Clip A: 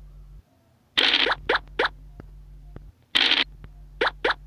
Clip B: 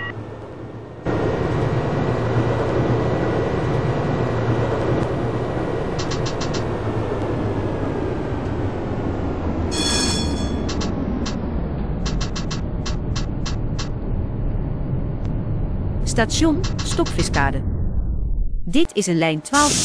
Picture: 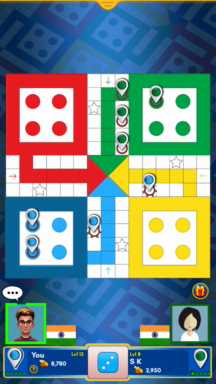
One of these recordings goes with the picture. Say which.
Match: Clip A